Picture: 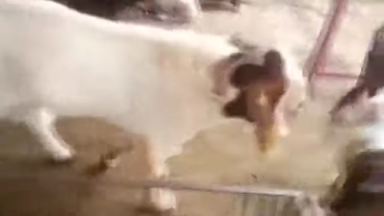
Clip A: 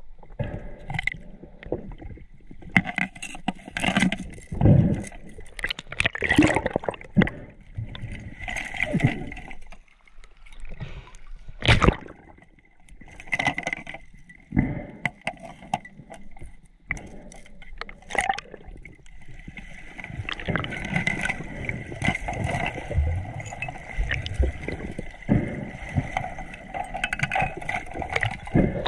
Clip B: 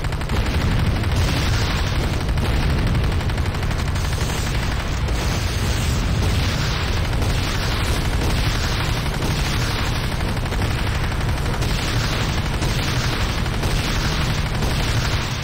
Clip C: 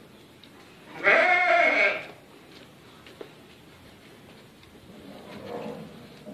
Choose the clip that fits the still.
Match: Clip C